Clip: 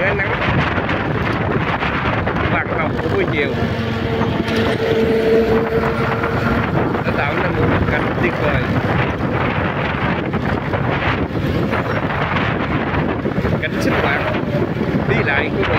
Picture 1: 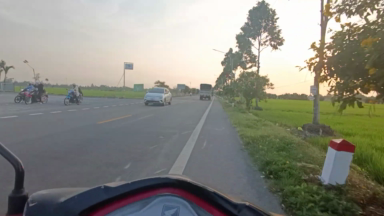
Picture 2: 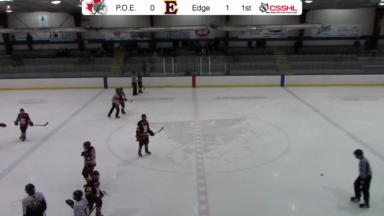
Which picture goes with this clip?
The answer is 1